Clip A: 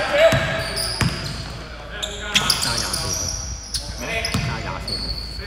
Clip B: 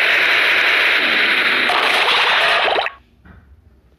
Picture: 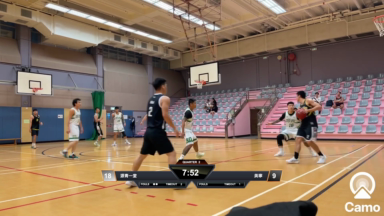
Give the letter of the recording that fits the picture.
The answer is A